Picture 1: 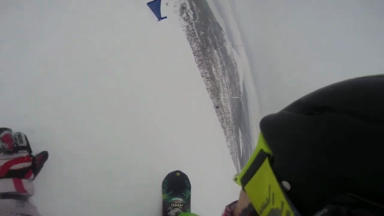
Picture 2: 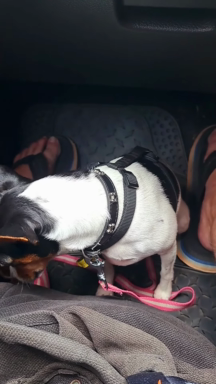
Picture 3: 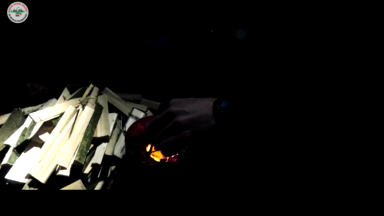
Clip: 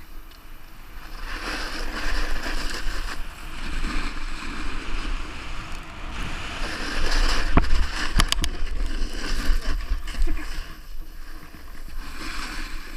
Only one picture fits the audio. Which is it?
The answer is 1